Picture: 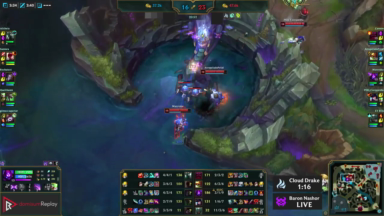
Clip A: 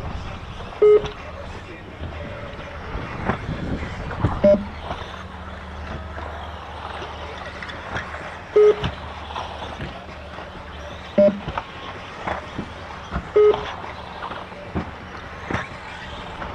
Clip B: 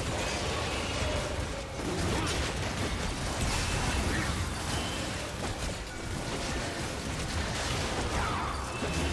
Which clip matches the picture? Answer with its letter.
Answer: B